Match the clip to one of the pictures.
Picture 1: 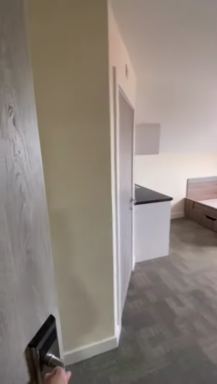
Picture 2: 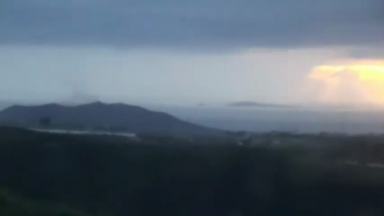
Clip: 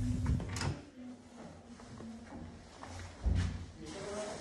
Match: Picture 1